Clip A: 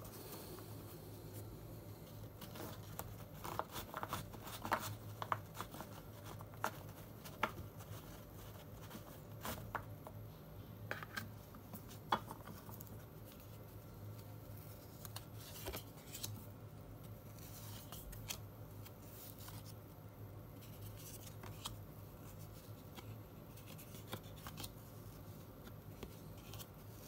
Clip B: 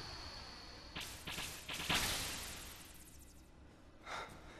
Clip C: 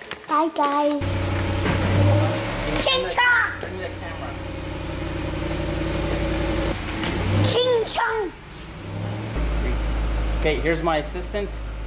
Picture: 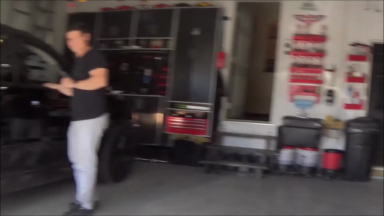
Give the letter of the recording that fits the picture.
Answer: C